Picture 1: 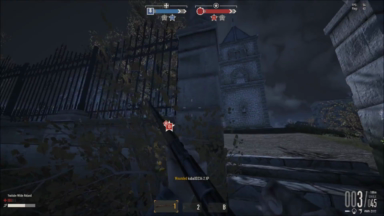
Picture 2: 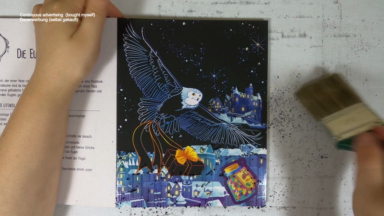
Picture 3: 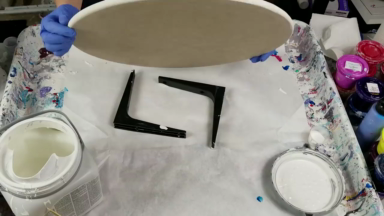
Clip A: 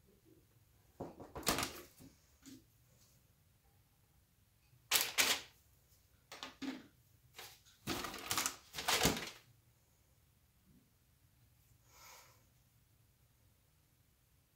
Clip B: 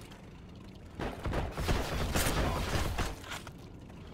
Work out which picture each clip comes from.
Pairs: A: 3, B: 1